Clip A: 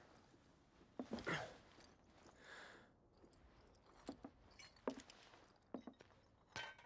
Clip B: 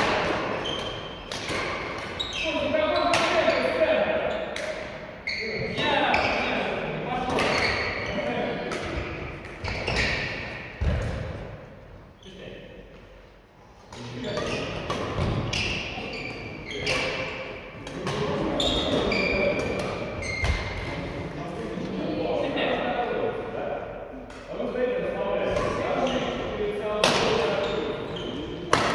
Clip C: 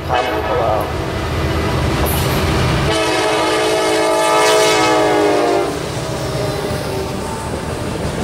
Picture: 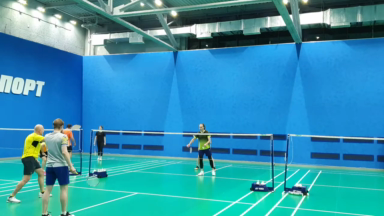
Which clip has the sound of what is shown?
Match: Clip B